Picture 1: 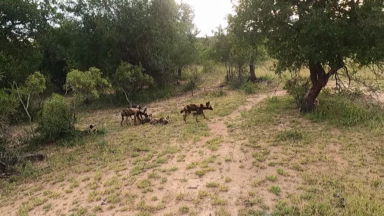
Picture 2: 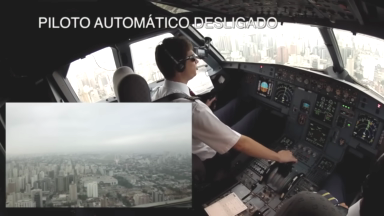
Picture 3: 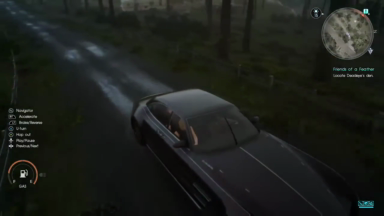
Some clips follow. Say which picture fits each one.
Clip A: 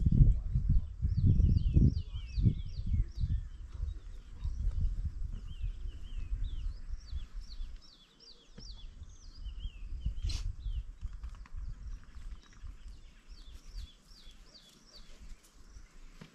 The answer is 1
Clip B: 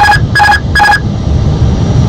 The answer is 2